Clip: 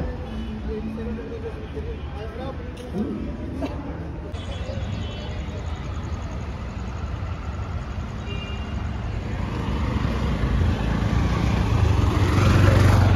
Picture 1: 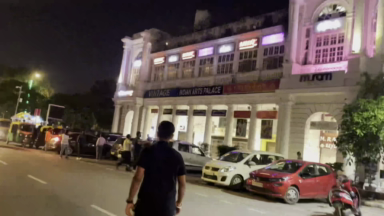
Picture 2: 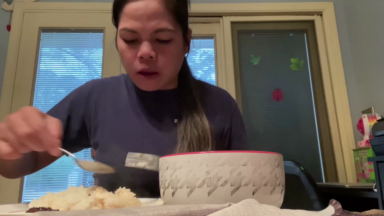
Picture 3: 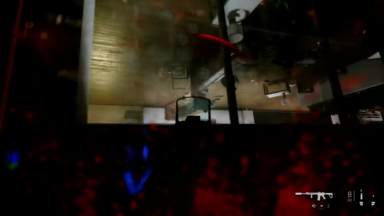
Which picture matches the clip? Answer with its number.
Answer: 1